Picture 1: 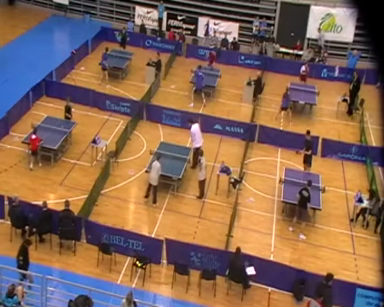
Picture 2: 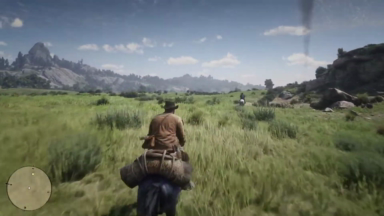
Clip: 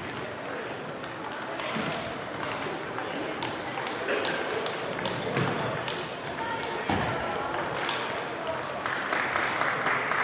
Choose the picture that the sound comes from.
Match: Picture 1